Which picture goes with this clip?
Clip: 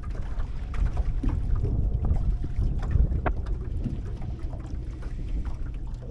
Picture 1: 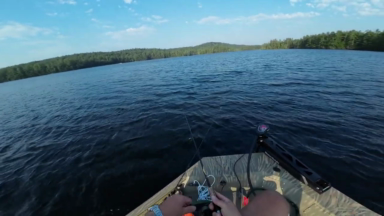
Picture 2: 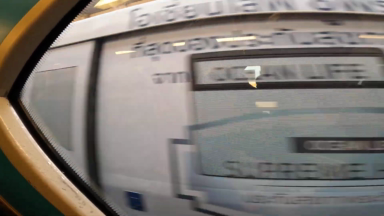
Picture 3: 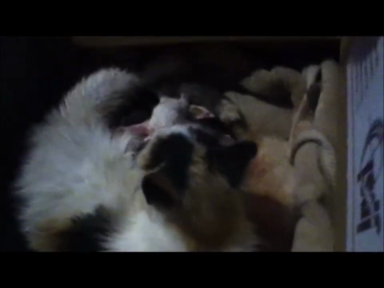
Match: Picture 1